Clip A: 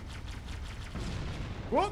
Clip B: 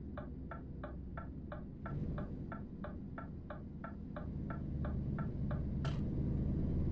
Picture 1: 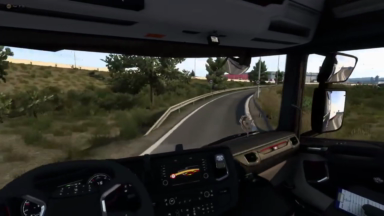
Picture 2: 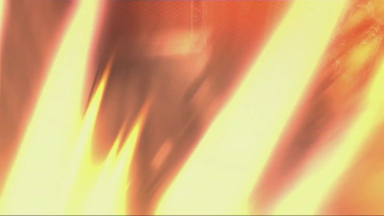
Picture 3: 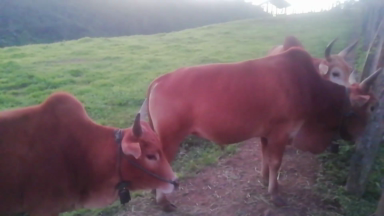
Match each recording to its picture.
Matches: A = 2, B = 1